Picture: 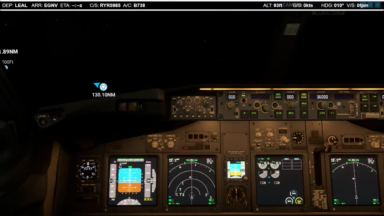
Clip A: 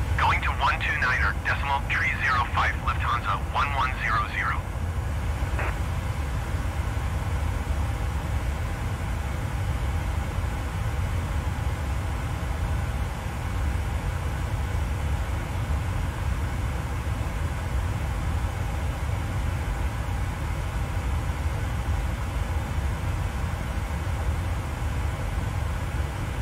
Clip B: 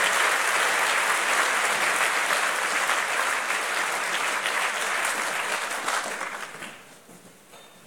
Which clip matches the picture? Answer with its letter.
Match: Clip A